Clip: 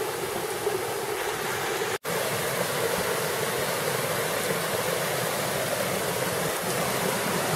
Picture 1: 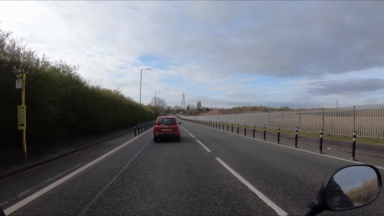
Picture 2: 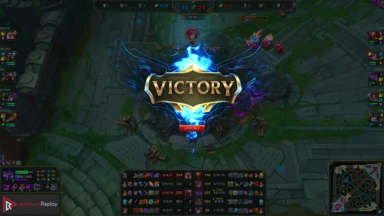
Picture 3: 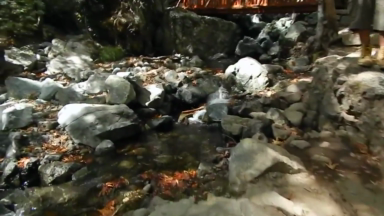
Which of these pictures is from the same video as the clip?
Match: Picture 3